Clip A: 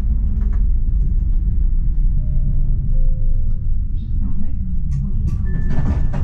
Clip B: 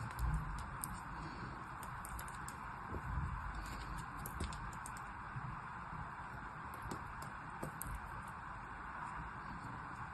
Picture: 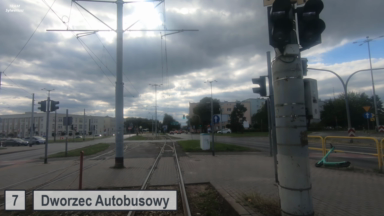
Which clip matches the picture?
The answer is A